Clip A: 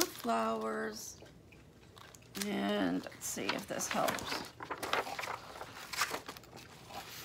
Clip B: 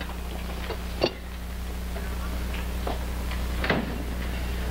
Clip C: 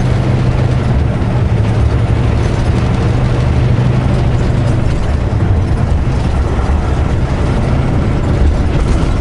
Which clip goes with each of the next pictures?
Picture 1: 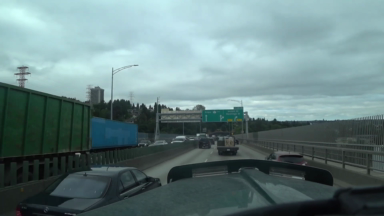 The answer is C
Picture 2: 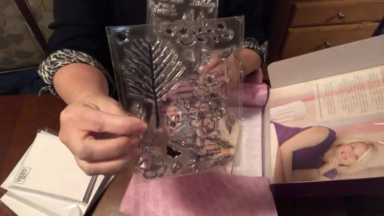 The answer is A